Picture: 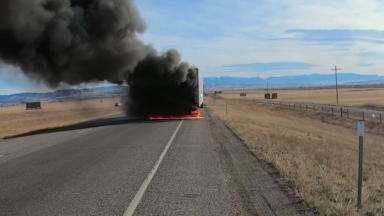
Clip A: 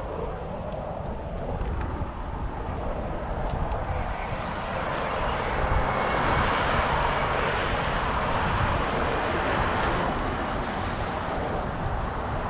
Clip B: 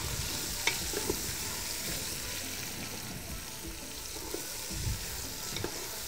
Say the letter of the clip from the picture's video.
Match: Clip A